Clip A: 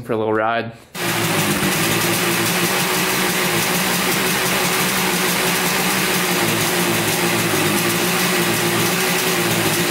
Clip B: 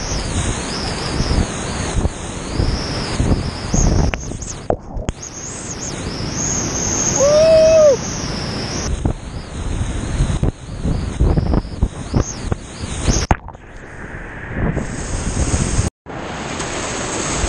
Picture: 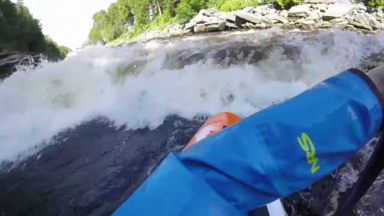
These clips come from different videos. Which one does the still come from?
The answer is B